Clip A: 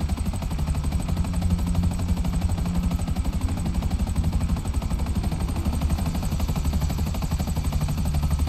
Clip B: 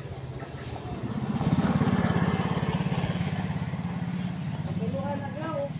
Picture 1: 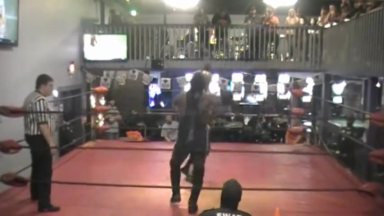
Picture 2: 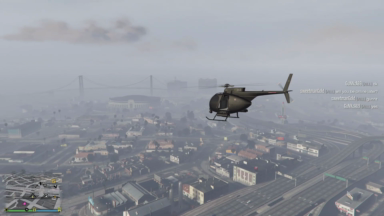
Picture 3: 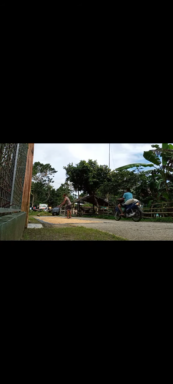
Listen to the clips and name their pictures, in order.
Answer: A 2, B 3